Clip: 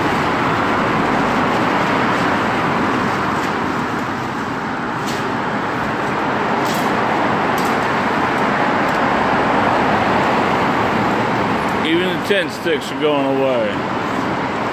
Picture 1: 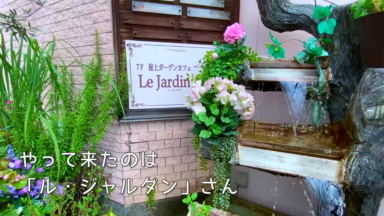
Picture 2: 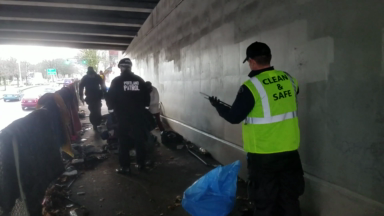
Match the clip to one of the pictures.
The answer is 2